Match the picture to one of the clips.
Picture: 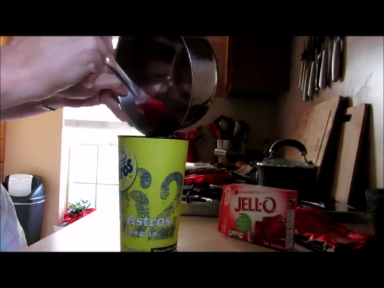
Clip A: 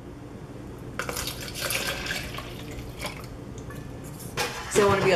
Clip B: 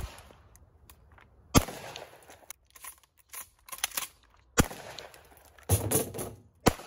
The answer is A